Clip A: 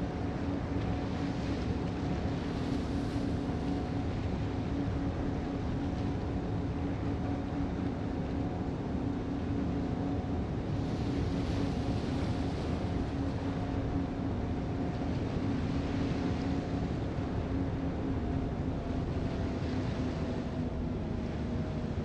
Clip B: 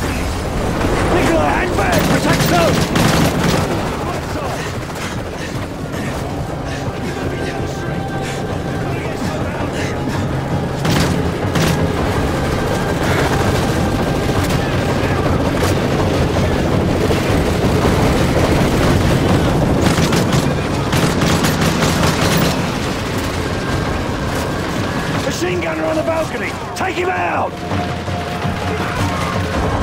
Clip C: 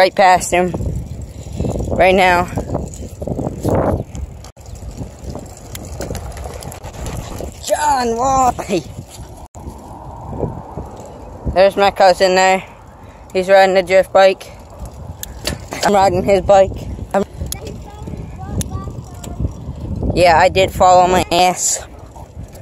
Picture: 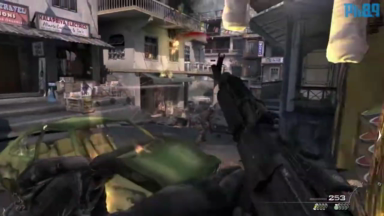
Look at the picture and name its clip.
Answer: B